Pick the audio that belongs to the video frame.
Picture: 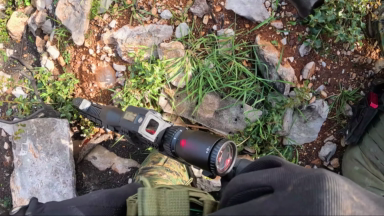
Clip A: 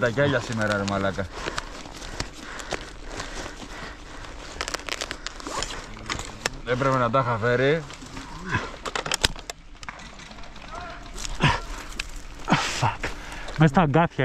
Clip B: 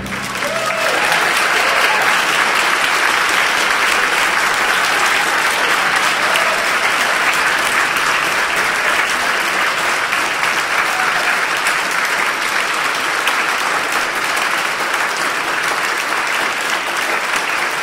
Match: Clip A